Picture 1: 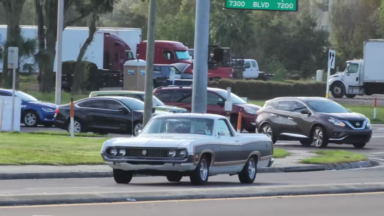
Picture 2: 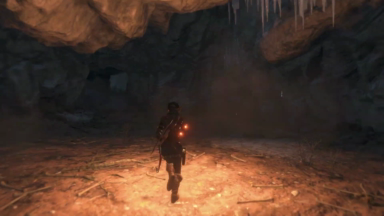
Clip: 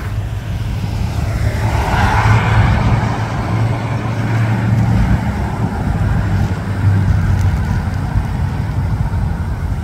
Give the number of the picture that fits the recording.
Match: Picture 1